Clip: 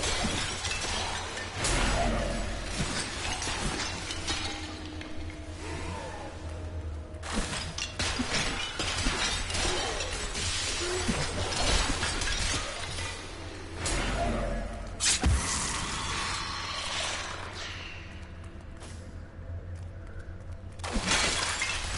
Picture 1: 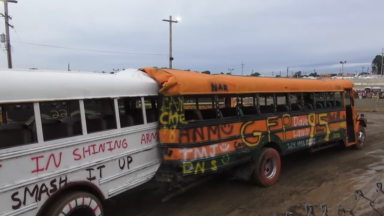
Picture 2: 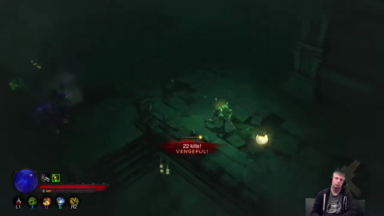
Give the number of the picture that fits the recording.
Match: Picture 2